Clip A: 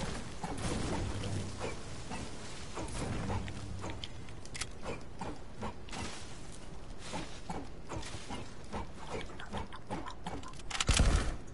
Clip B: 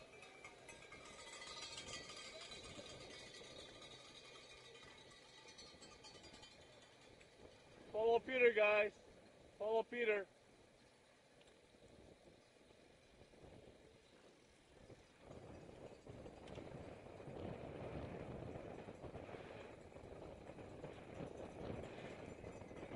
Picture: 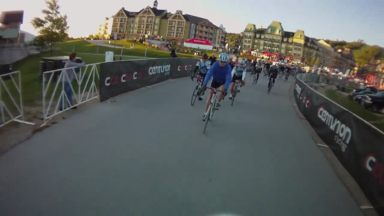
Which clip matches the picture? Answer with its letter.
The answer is B